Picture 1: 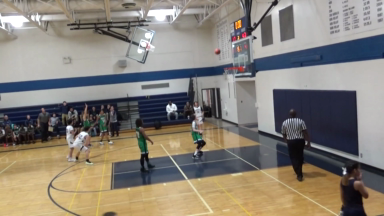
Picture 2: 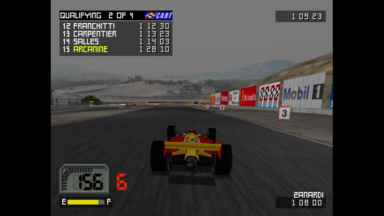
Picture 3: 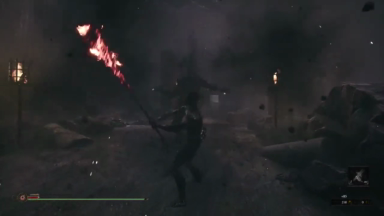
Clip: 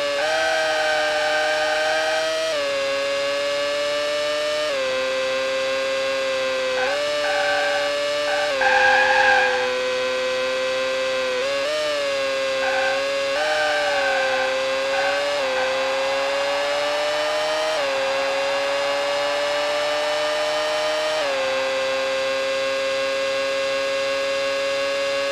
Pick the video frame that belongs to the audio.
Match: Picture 2